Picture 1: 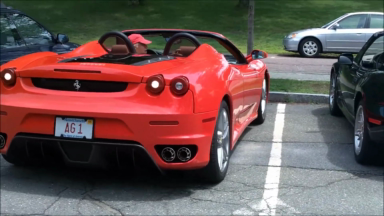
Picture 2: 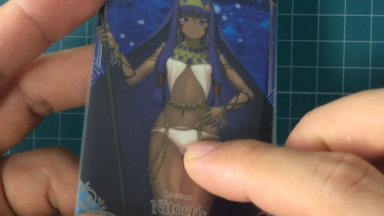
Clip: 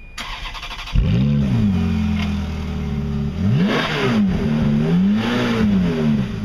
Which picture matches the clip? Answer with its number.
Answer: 1